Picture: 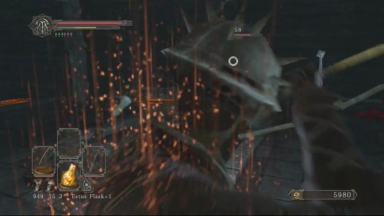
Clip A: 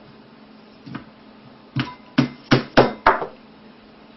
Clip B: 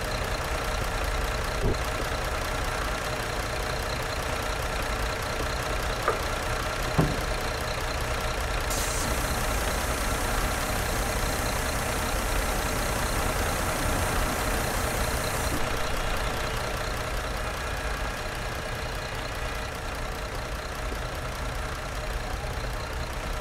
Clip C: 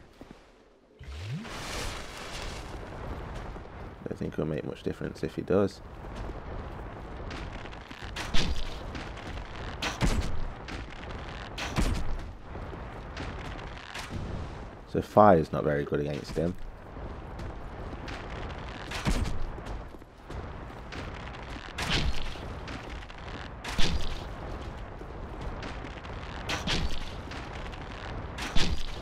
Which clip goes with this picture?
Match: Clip C